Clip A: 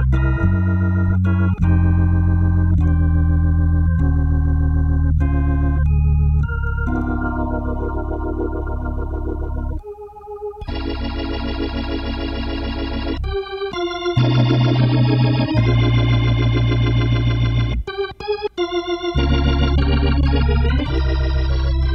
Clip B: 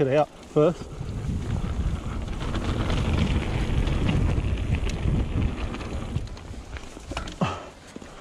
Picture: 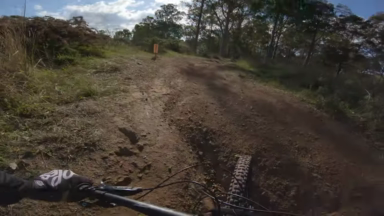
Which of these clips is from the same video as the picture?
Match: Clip B